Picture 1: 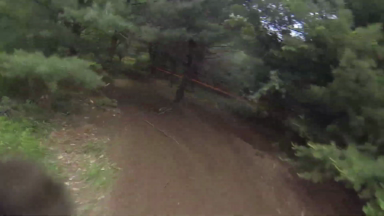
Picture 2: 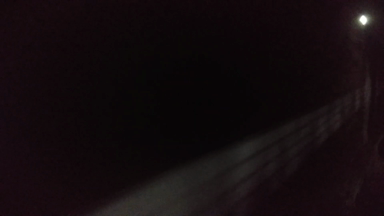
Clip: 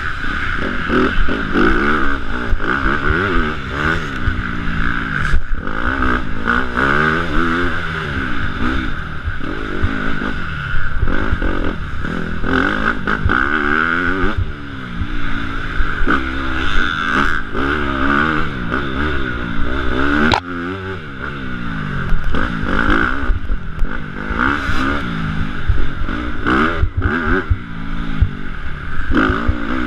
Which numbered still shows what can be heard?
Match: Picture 1